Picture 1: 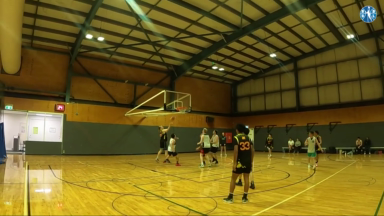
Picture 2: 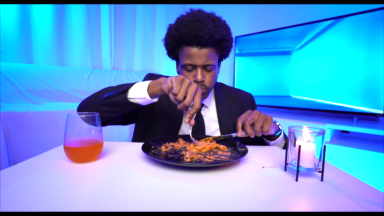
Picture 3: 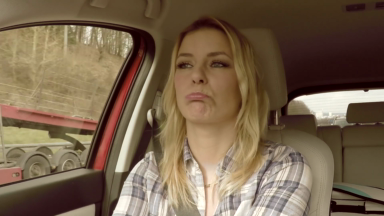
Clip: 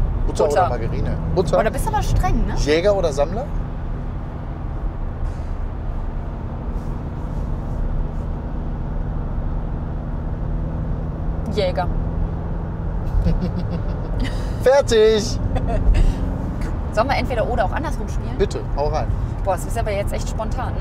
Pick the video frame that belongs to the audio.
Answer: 3